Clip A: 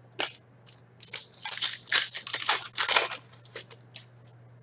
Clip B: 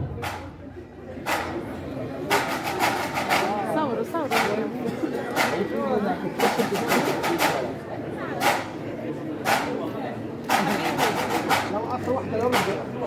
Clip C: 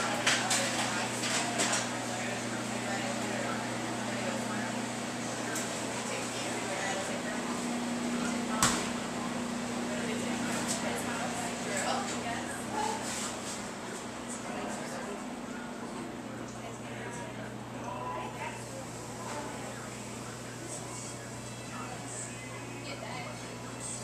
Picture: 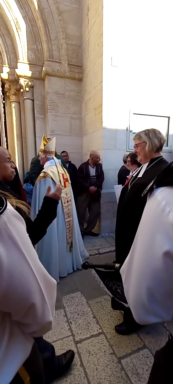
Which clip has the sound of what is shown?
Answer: B